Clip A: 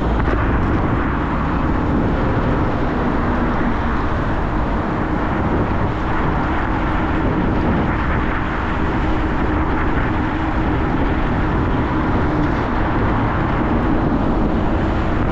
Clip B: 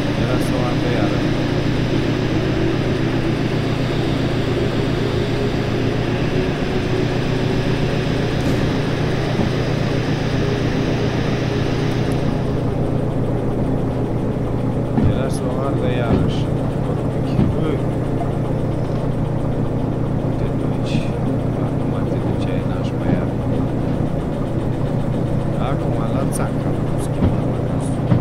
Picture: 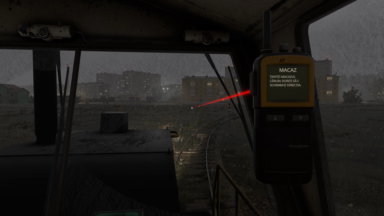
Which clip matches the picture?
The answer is B